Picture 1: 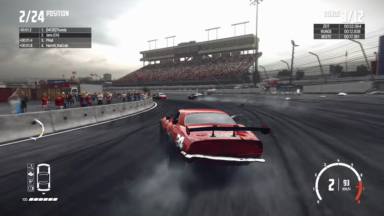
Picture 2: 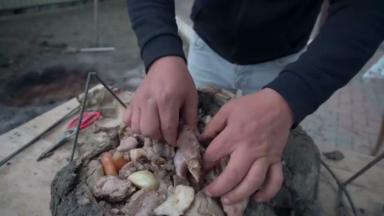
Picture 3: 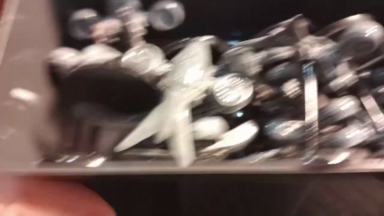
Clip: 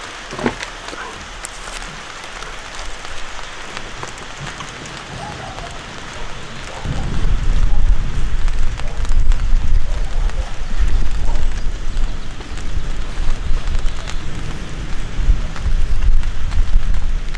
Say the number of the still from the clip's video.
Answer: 2